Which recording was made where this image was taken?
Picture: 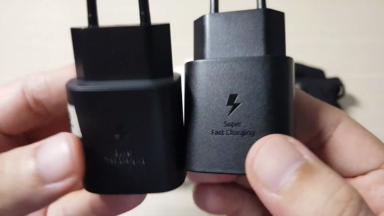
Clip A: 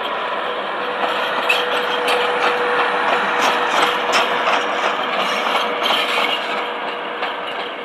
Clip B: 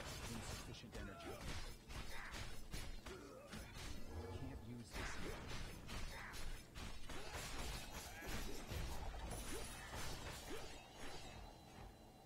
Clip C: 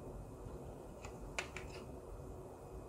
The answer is C